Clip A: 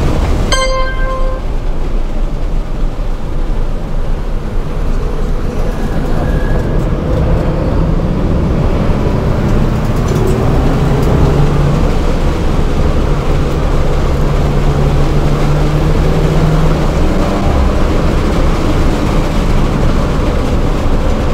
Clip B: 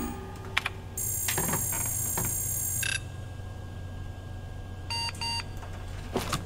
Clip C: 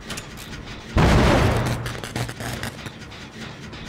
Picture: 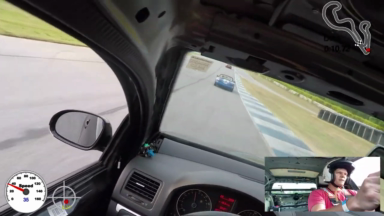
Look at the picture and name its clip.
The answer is A